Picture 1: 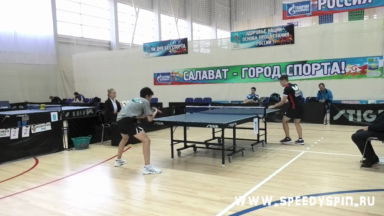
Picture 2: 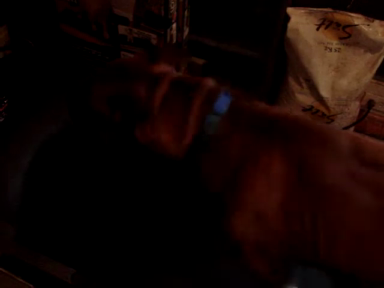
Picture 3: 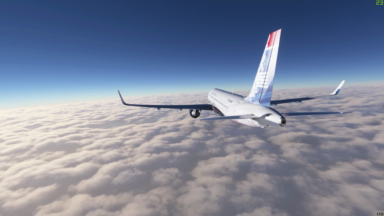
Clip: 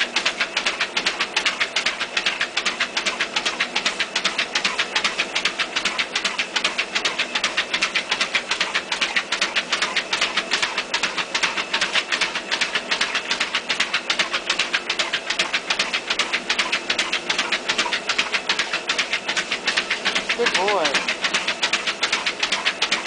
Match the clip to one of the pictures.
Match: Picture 2